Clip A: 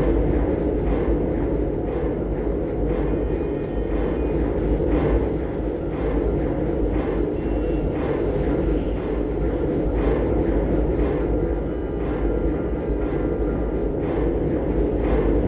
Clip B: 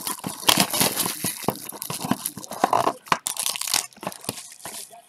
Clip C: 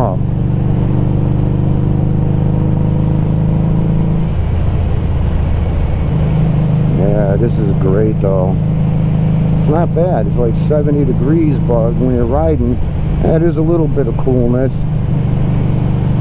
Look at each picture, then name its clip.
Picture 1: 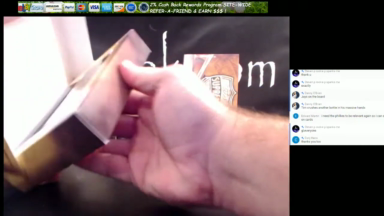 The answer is B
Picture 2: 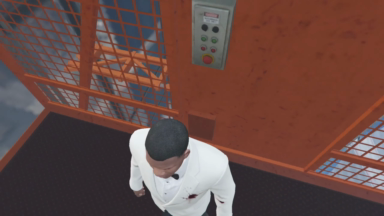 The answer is A